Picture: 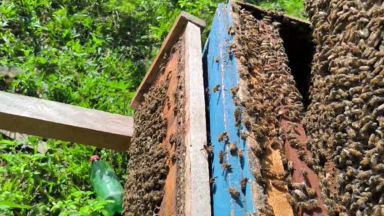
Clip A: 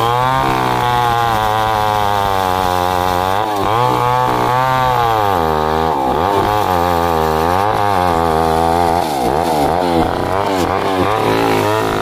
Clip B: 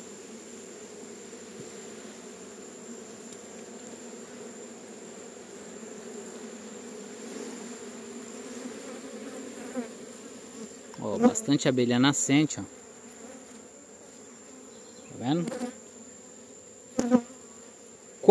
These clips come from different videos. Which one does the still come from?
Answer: B